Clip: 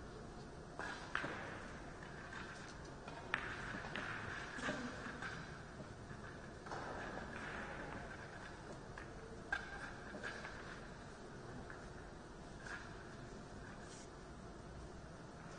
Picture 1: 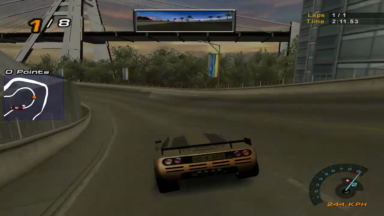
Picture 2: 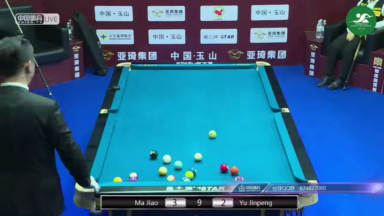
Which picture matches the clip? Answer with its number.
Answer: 2